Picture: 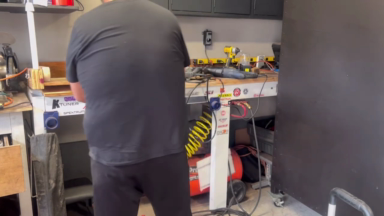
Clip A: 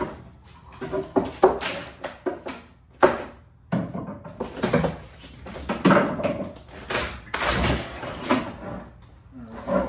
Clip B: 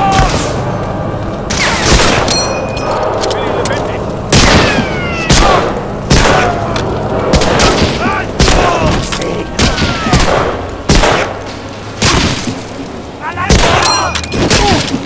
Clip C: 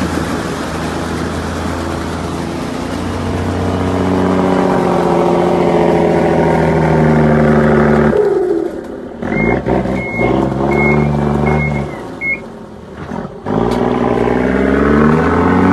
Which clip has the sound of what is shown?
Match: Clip A